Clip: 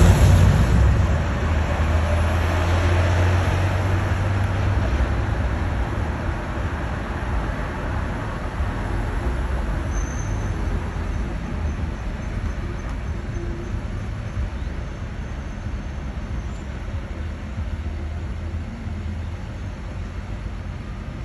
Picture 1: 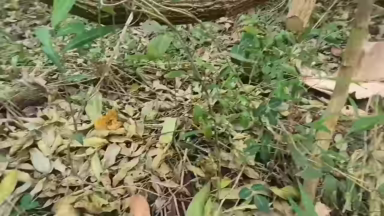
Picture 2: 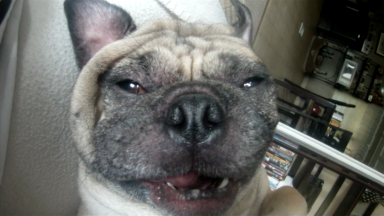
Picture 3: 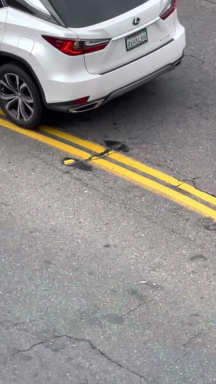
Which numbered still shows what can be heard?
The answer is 3